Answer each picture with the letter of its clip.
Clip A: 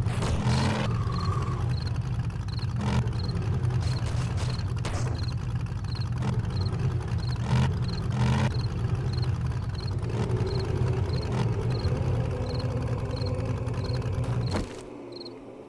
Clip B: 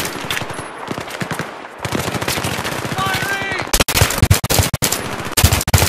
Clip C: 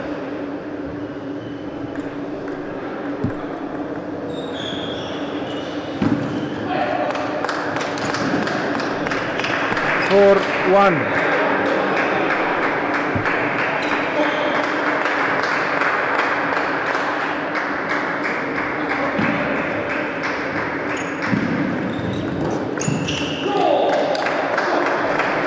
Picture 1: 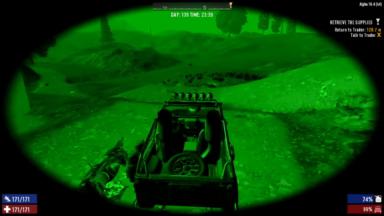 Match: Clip A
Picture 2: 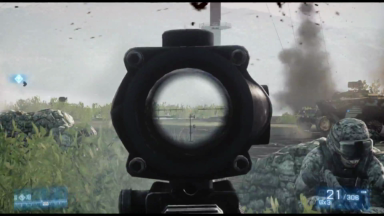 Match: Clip B